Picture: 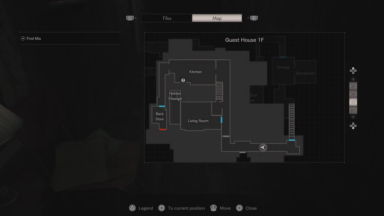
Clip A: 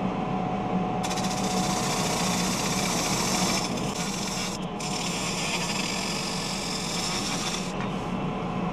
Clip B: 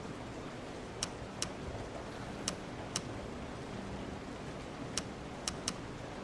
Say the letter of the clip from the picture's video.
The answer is B